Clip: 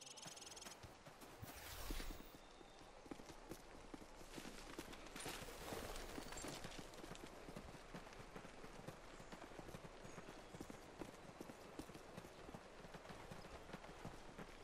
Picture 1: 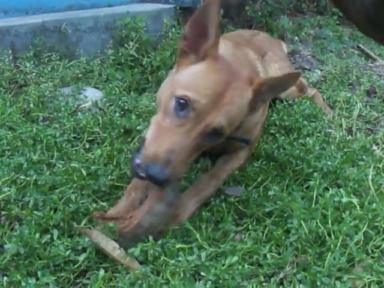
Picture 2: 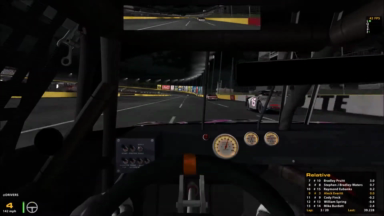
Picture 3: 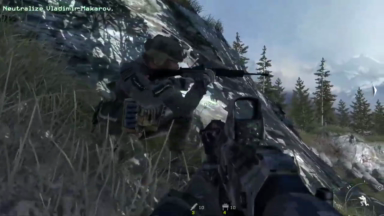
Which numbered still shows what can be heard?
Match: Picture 3